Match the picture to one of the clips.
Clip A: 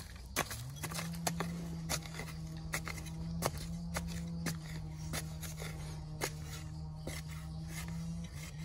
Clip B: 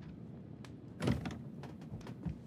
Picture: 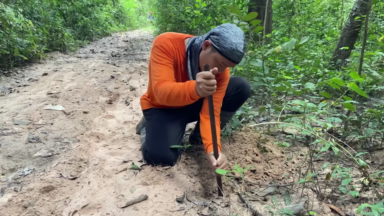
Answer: A